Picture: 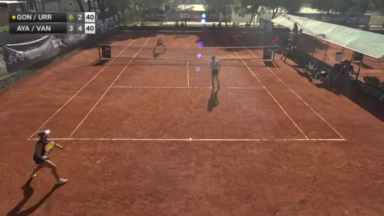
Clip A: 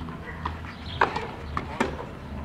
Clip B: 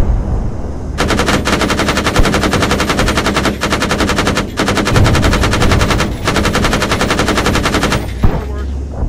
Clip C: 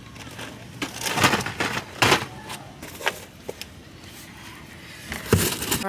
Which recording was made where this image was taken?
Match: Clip A